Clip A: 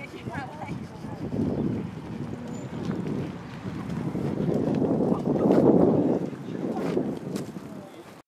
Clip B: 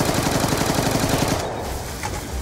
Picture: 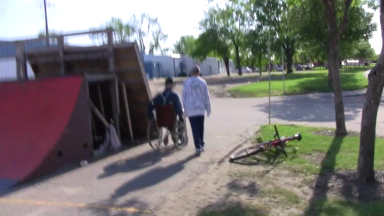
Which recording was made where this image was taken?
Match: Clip A